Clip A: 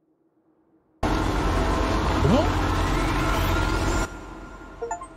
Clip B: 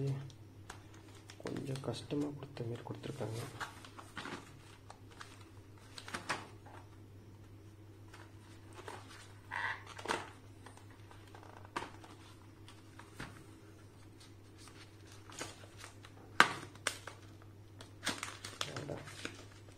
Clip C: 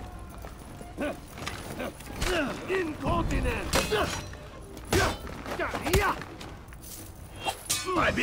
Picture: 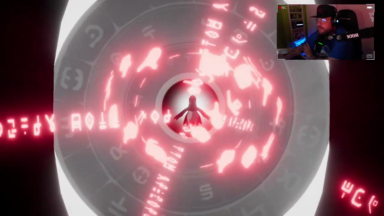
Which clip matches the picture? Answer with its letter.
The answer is A